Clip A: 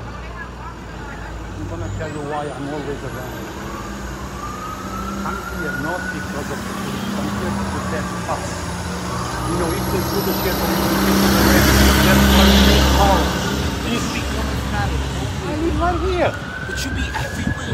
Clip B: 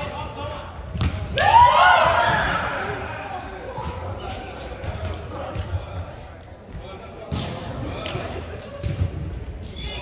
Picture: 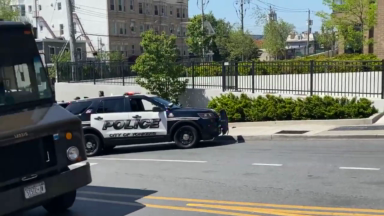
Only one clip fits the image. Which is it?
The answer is A